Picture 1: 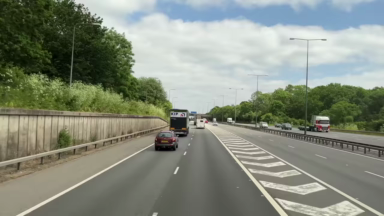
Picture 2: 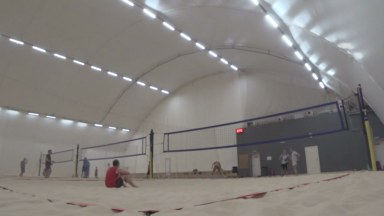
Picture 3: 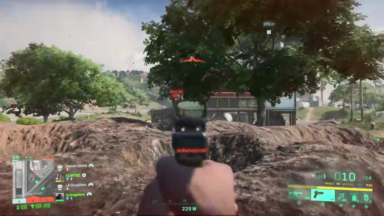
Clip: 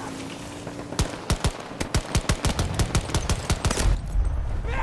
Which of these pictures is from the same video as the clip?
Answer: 3